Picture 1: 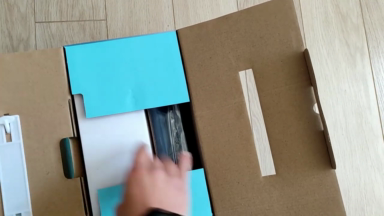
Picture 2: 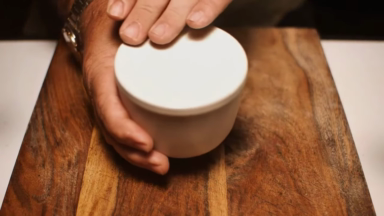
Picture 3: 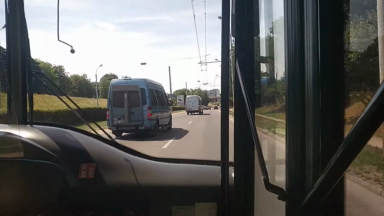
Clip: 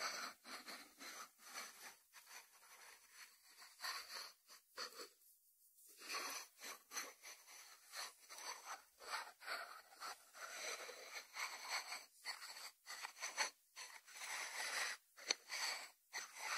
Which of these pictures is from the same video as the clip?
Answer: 2